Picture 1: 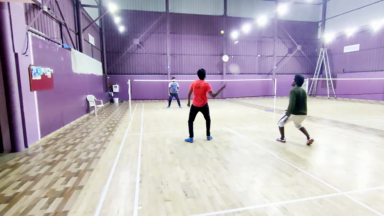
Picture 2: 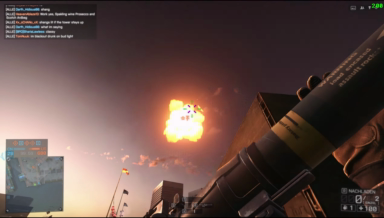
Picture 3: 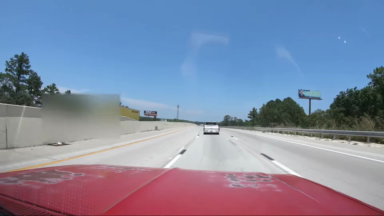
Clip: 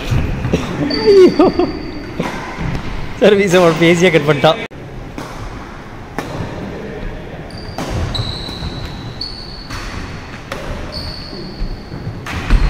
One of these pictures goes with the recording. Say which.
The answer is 1